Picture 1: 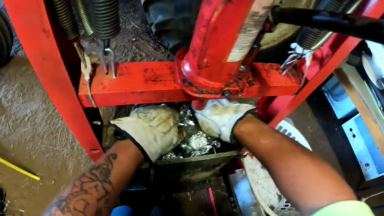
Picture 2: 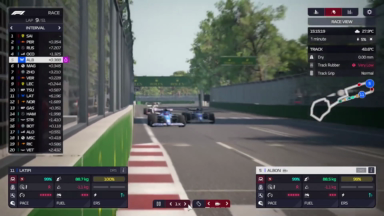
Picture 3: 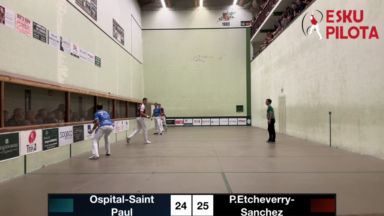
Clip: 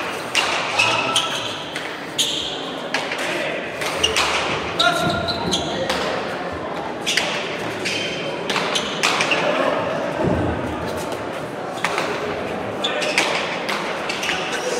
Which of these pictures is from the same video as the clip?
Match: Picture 3